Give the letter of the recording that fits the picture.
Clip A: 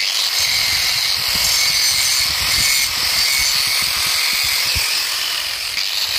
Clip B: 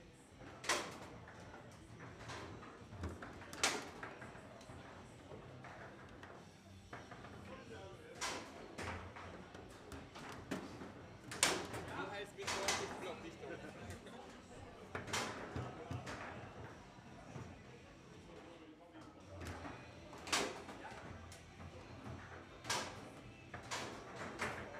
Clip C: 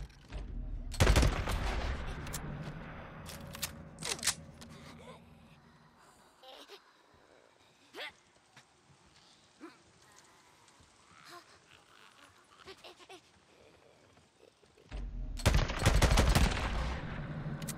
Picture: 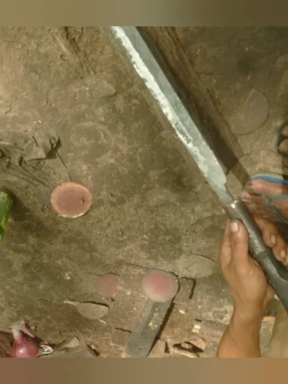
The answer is A